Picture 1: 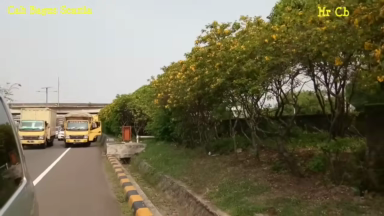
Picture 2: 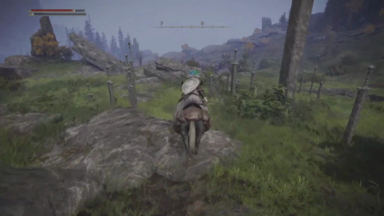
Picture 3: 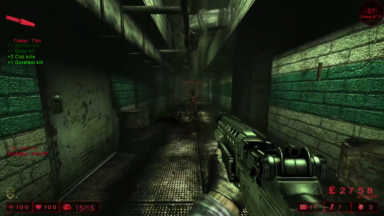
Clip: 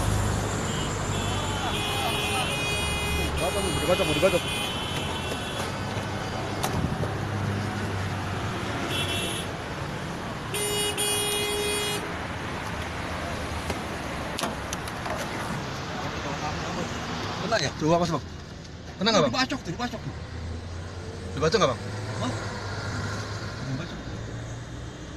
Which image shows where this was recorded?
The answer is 1